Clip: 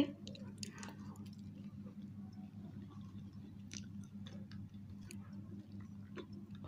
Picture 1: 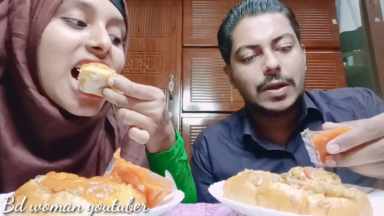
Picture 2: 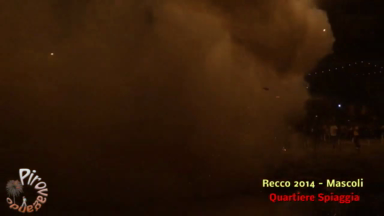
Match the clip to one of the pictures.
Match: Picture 1